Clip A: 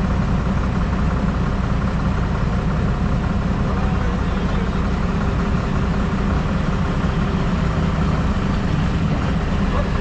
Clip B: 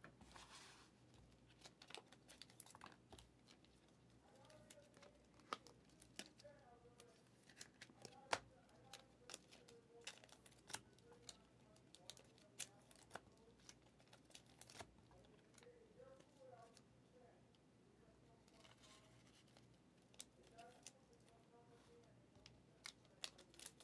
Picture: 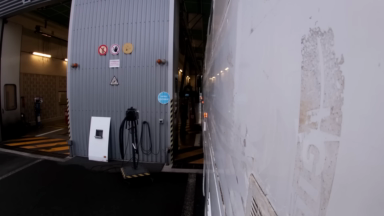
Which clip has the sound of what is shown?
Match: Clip A